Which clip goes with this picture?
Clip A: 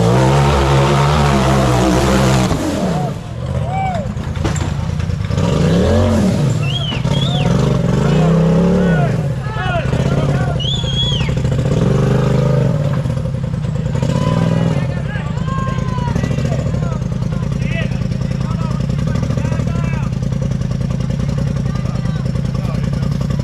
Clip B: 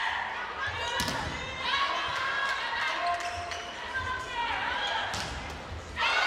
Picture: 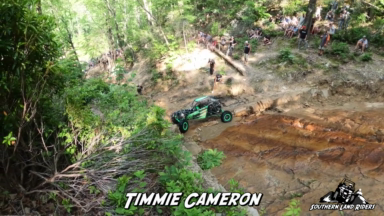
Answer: A